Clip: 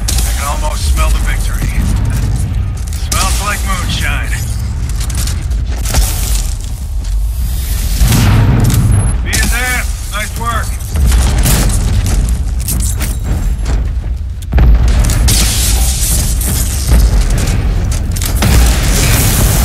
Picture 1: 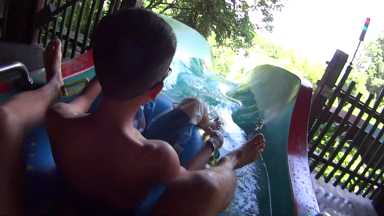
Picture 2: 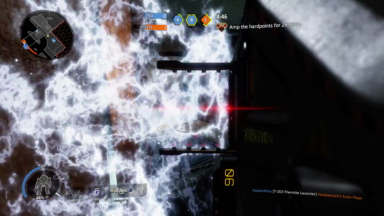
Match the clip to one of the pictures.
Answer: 2